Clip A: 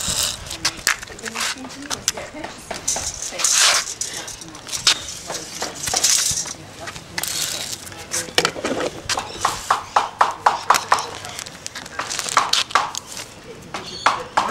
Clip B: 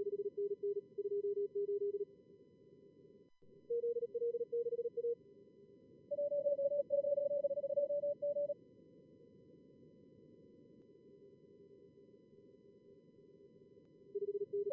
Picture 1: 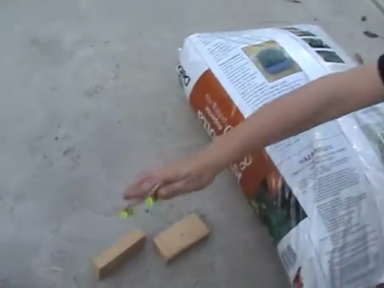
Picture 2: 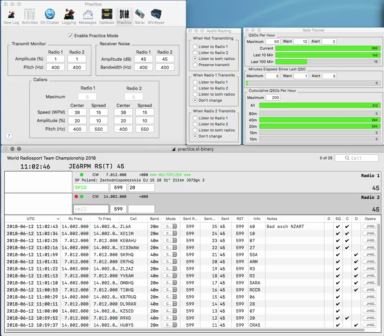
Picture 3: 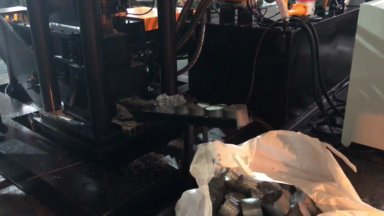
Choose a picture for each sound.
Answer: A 1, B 2